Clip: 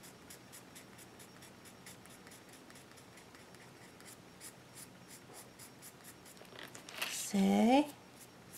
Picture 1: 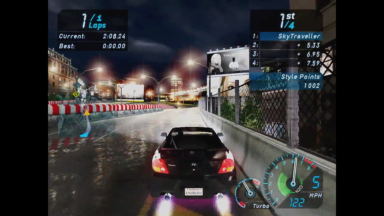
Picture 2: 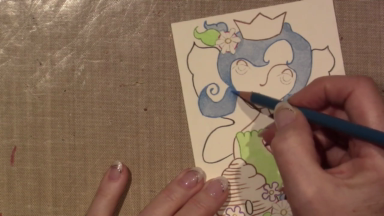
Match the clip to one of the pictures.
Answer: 2